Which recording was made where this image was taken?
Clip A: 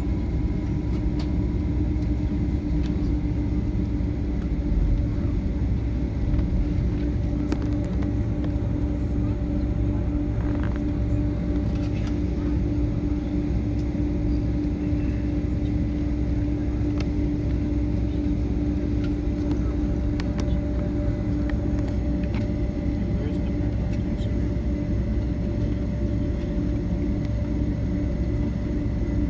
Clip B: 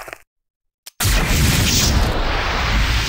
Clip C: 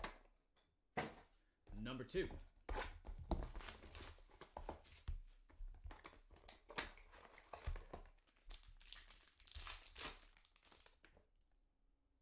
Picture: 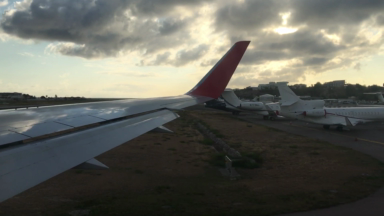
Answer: A